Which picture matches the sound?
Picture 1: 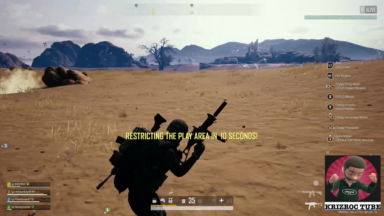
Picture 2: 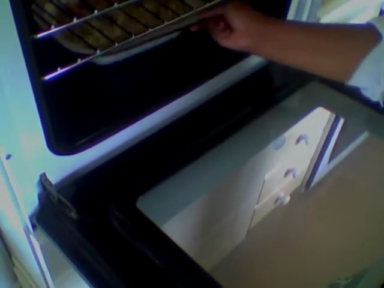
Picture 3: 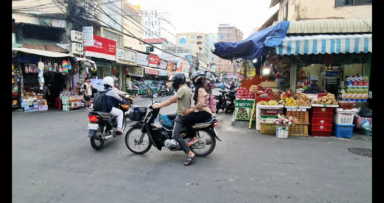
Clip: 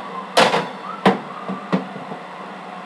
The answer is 2